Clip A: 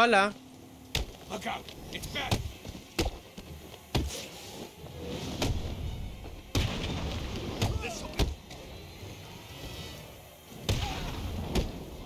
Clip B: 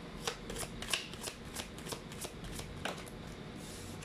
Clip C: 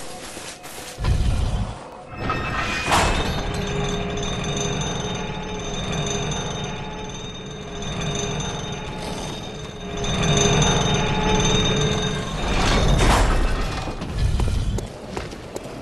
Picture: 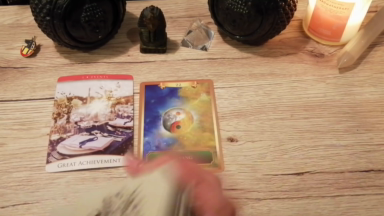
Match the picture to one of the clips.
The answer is B